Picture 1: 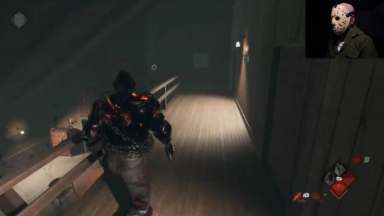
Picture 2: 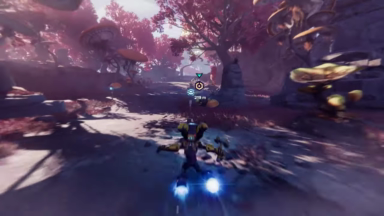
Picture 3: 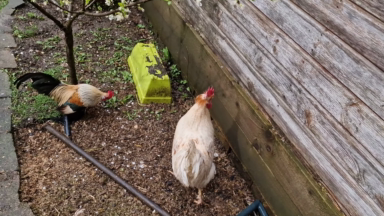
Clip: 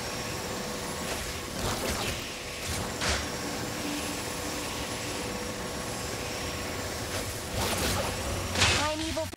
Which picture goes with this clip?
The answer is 2